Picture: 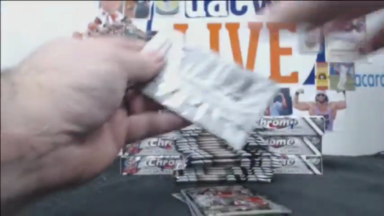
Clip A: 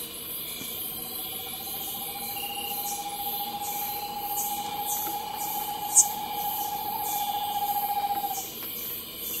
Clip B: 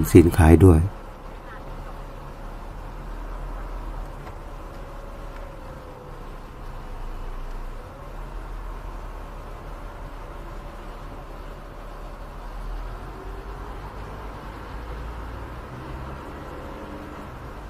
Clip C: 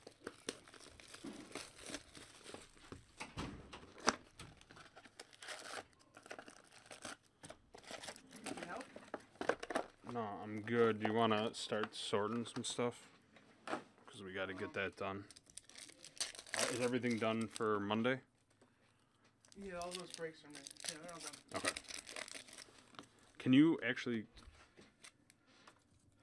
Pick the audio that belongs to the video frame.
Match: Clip C